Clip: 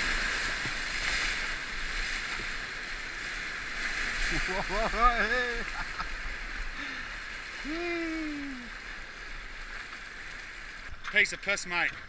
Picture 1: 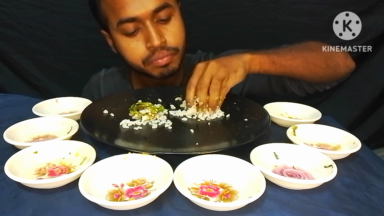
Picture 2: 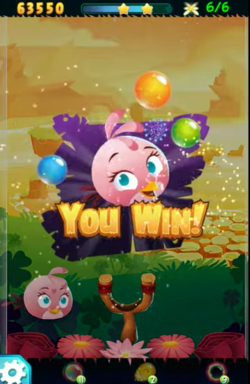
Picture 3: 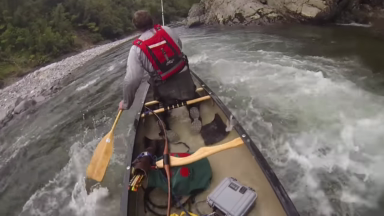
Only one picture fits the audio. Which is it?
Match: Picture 3